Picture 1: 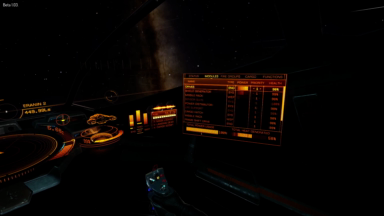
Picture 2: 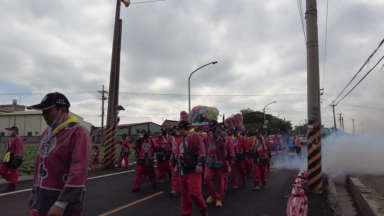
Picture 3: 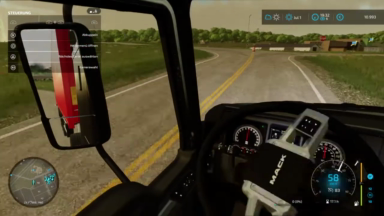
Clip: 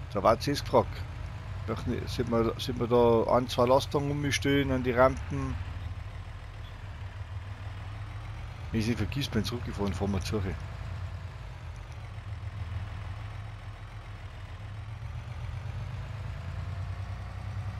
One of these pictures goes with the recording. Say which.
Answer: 3